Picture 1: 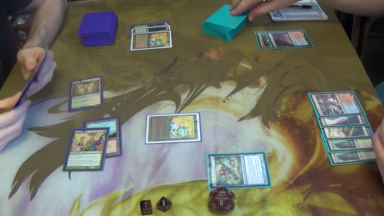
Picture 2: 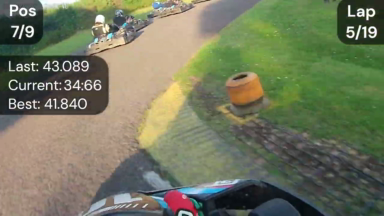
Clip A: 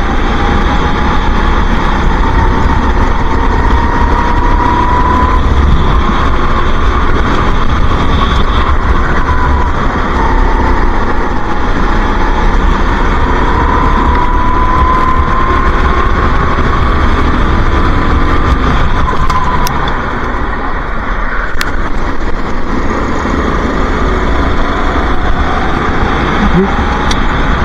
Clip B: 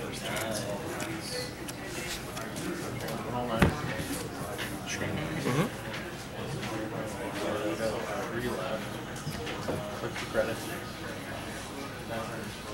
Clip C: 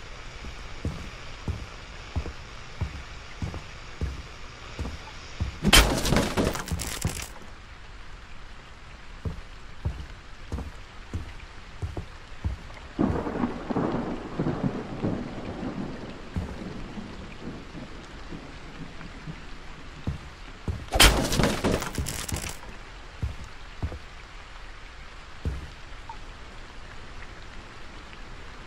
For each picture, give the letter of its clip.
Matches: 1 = B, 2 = A